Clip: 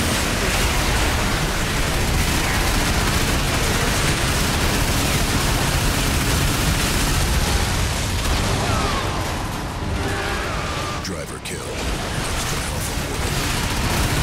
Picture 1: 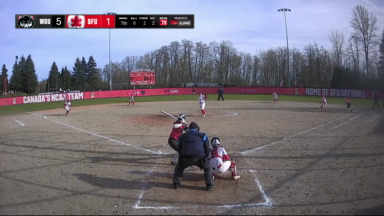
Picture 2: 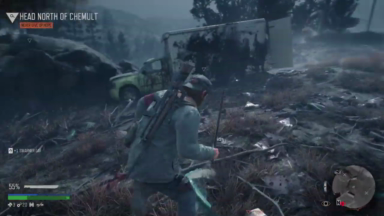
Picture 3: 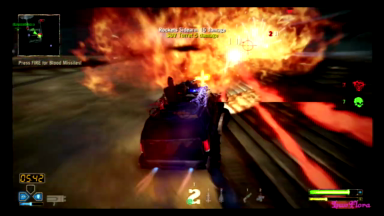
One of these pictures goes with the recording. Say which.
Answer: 3